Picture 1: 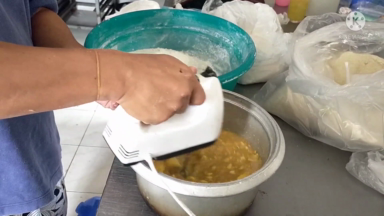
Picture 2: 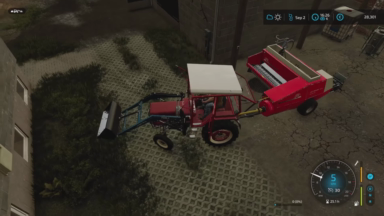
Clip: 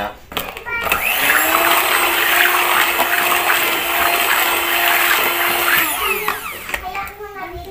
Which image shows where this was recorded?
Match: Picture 1